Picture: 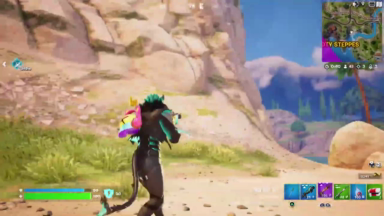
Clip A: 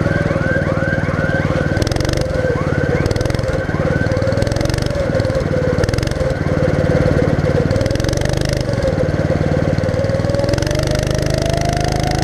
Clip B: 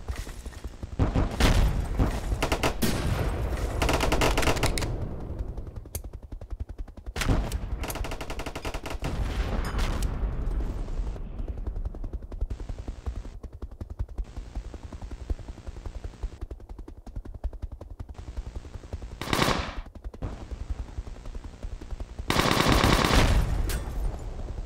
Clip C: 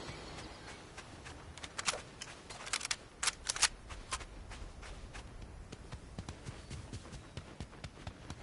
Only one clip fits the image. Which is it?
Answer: C